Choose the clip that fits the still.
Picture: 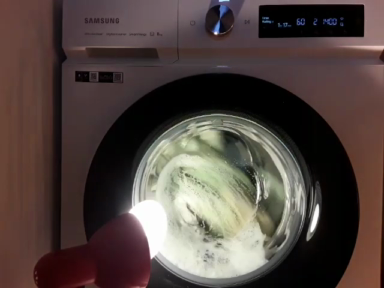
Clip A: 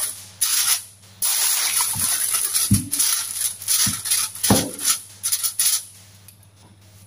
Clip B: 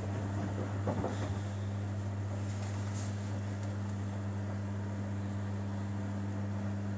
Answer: B